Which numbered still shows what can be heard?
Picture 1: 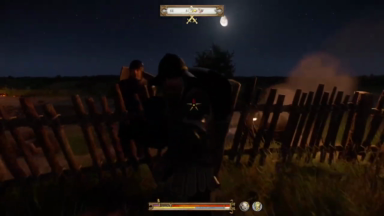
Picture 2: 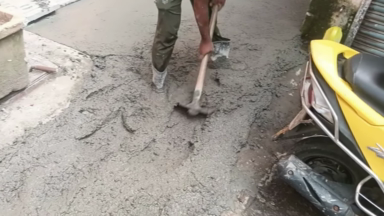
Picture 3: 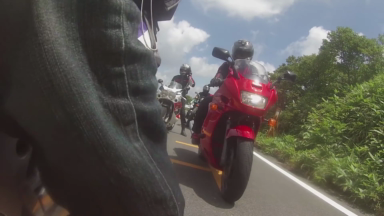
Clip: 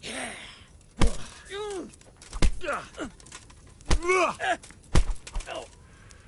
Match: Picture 1